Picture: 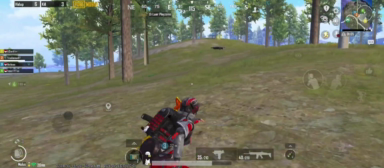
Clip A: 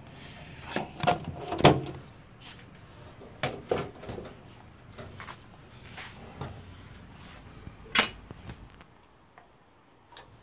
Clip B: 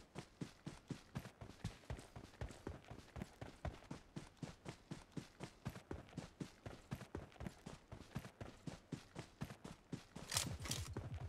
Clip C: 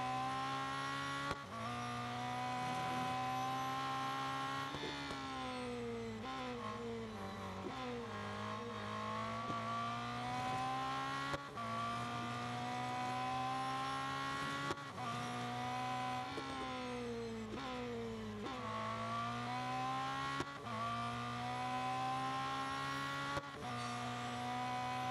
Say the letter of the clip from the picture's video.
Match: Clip B